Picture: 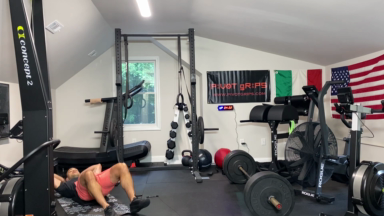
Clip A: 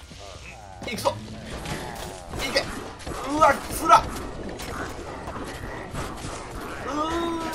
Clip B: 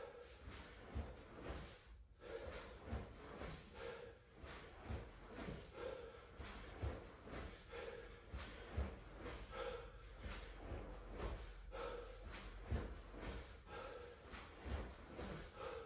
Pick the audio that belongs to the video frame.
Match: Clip B